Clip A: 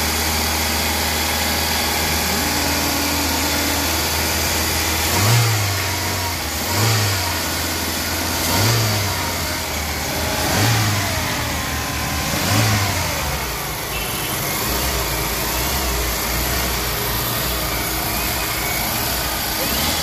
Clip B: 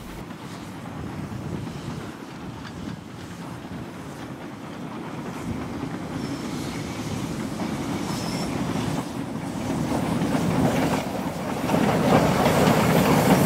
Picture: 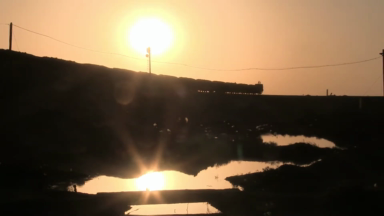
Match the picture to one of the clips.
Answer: B